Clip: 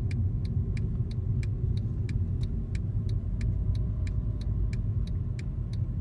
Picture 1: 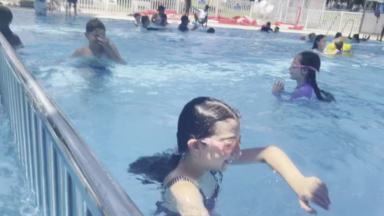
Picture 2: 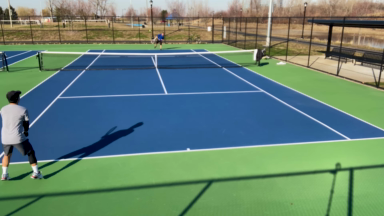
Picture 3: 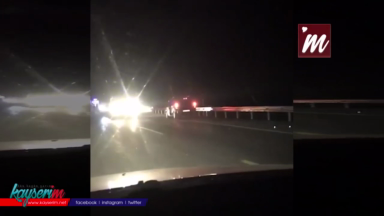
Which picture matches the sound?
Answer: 3